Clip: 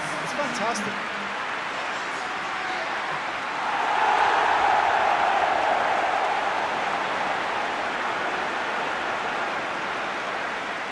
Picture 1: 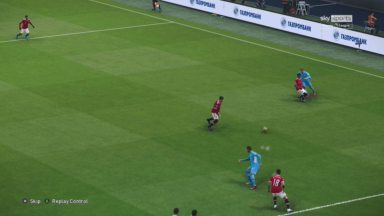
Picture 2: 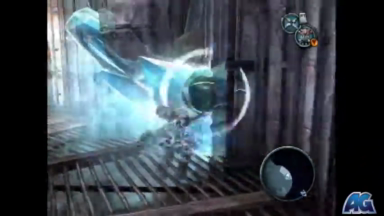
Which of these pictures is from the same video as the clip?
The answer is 1